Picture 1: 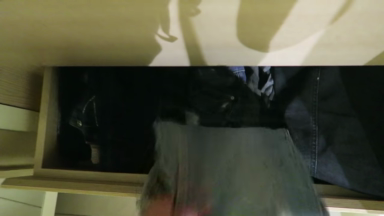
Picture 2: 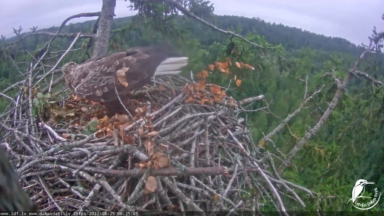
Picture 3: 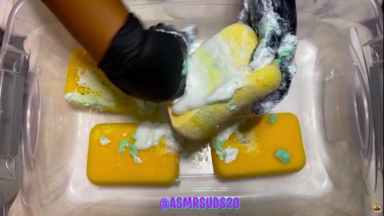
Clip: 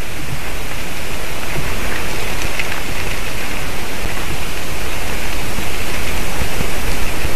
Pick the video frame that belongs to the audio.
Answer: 2